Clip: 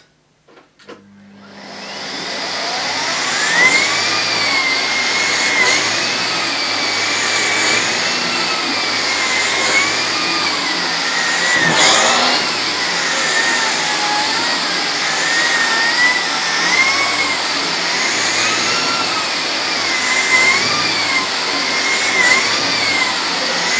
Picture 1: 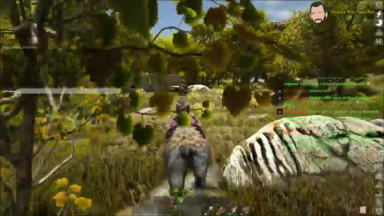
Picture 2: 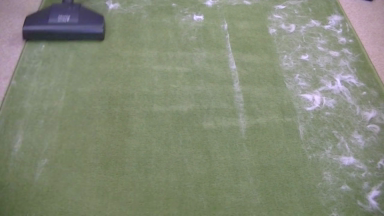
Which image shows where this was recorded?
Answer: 2